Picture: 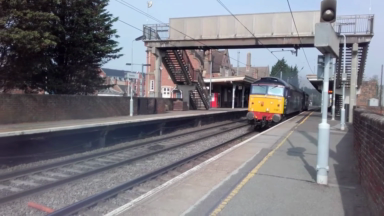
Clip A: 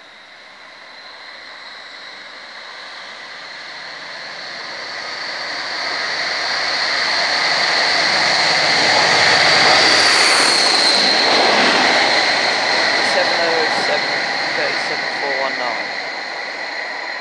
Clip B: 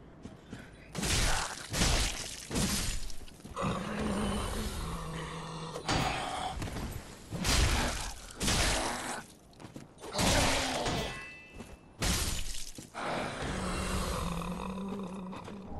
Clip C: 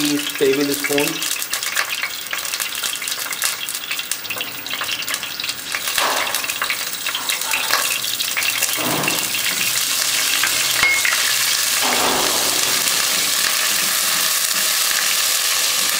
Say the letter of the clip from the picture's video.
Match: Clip A